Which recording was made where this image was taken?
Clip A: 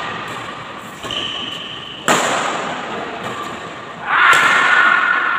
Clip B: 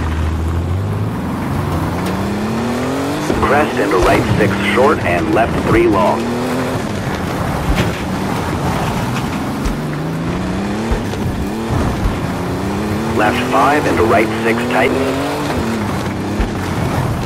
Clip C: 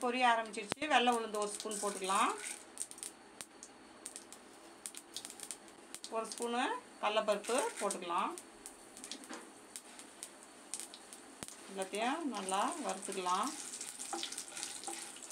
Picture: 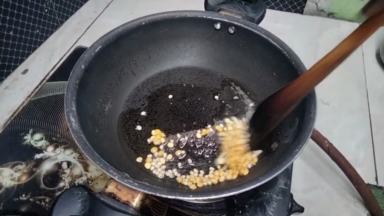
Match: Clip C